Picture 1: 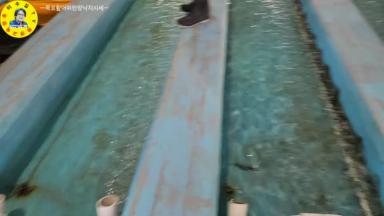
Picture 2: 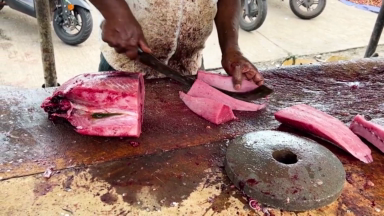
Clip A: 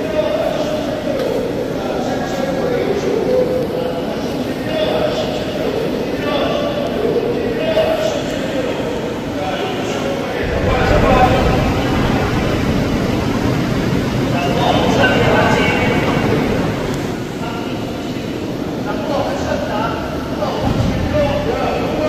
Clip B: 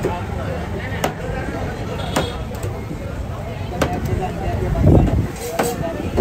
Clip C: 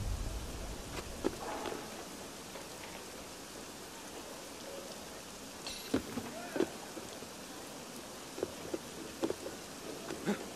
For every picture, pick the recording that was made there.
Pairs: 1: A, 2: B